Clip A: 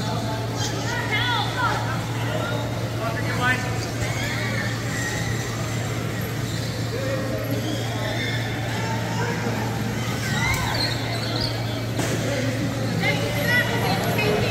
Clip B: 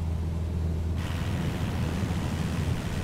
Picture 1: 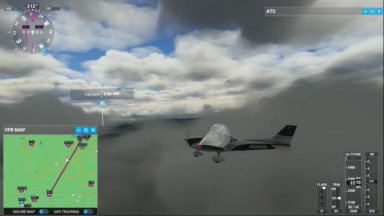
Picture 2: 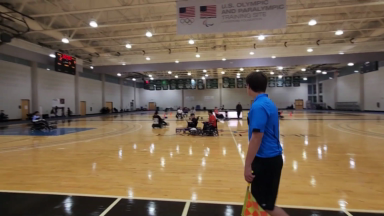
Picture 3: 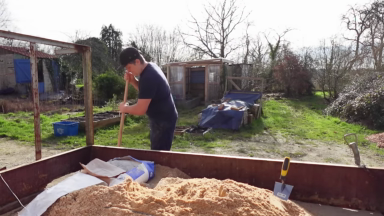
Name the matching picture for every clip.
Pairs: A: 2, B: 1